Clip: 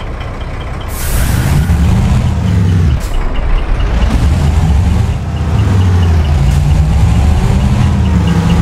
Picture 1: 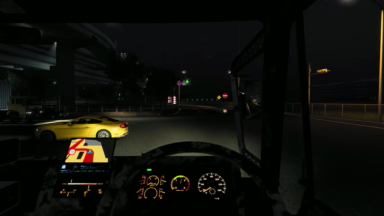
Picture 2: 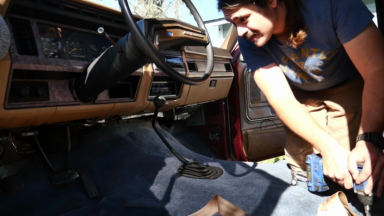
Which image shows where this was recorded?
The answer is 1